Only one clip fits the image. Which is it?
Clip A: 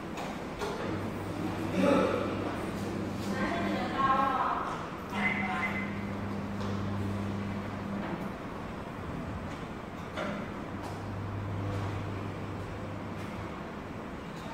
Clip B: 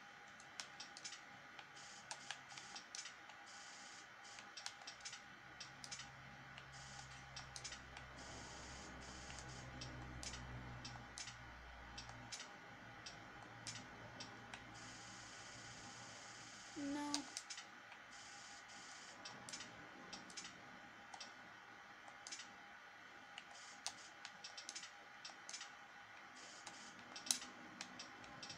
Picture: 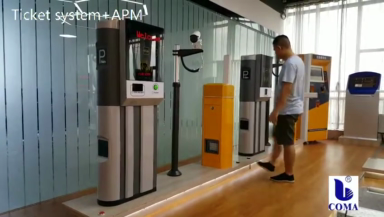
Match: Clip A